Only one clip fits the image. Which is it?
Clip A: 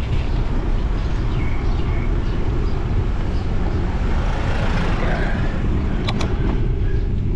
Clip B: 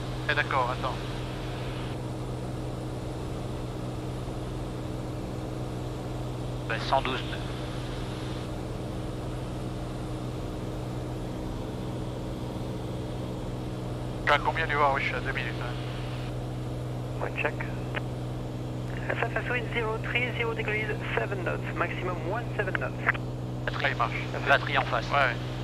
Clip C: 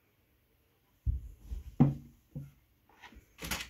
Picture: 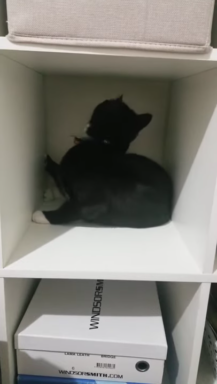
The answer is C